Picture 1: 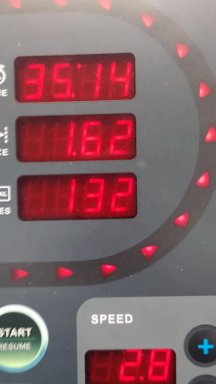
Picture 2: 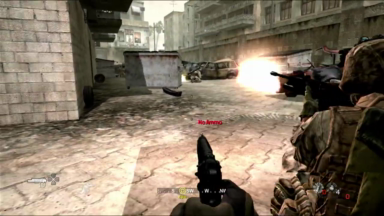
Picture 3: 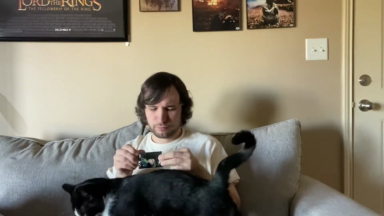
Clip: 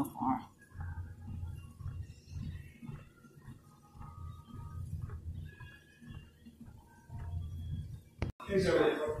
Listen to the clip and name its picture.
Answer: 1